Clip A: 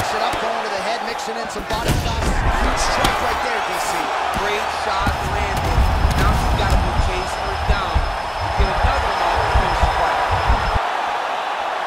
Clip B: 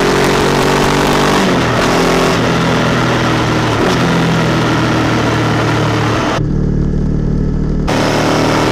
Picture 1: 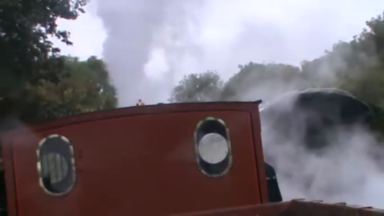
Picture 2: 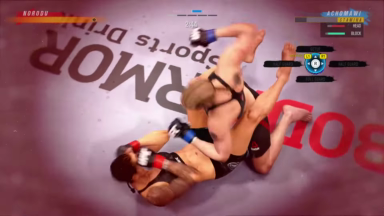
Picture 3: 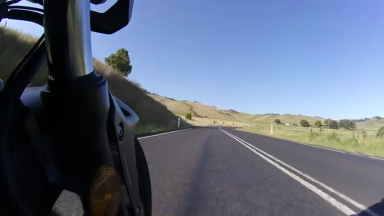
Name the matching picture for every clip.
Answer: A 2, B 3